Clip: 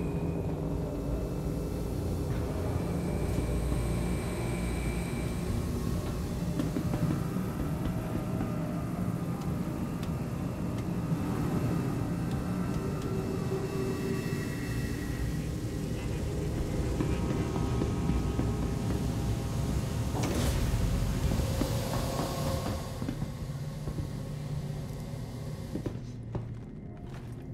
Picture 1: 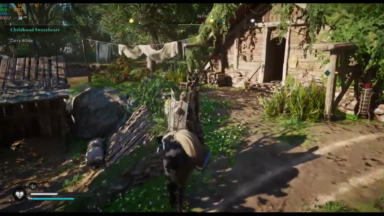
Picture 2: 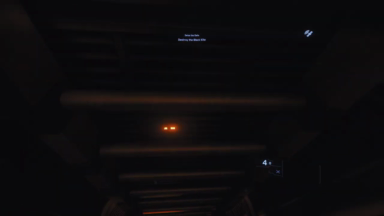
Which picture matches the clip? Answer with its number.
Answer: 2